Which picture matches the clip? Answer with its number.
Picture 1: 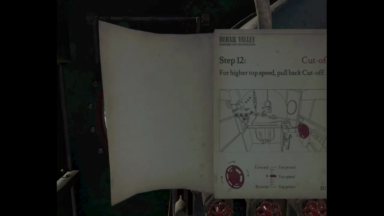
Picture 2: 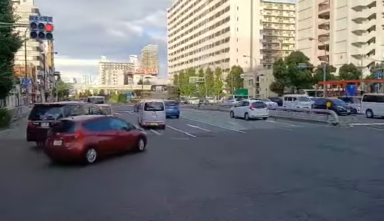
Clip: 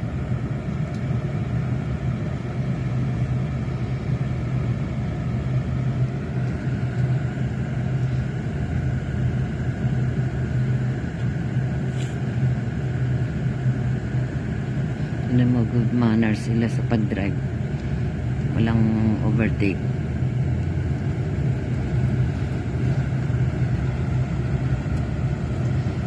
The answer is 2